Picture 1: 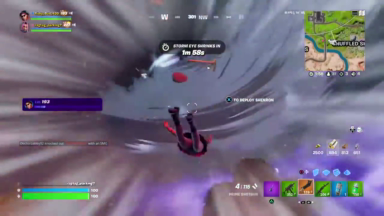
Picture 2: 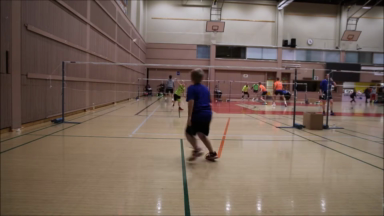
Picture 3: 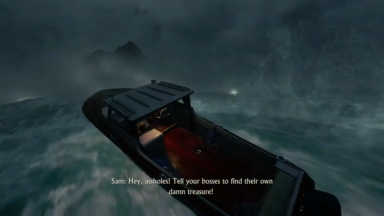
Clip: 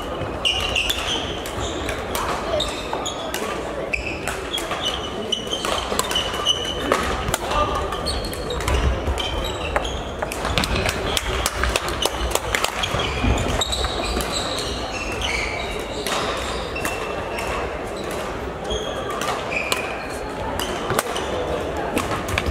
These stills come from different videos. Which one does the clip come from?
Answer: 2